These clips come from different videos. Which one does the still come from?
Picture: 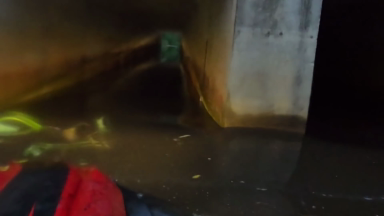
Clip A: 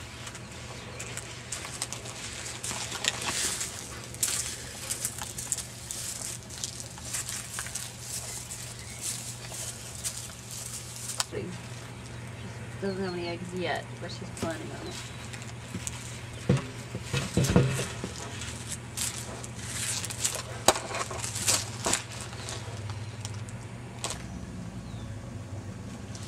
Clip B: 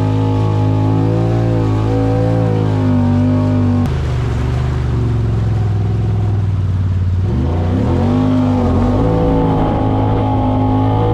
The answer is B